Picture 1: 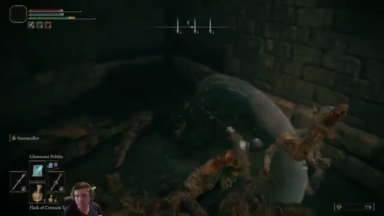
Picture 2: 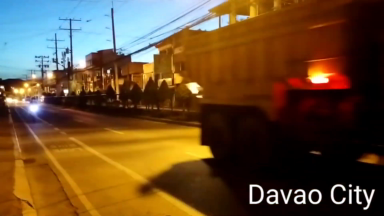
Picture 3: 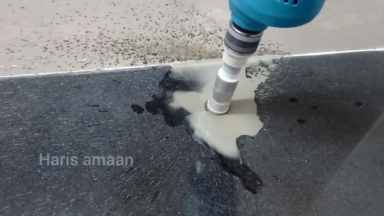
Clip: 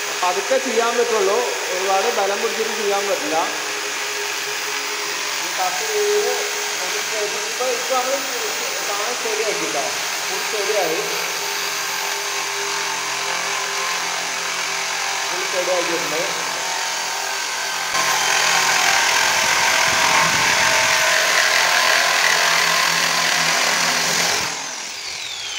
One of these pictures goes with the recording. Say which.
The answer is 3